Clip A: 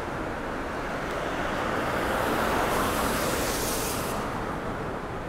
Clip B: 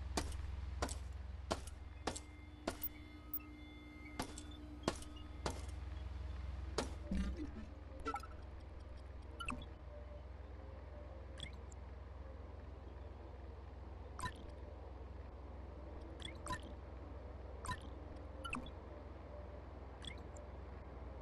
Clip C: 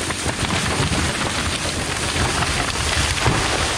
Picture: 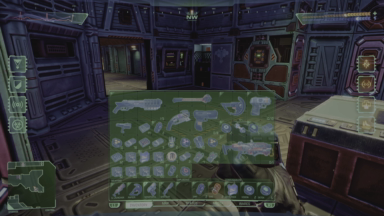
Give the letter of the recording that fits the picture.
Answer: B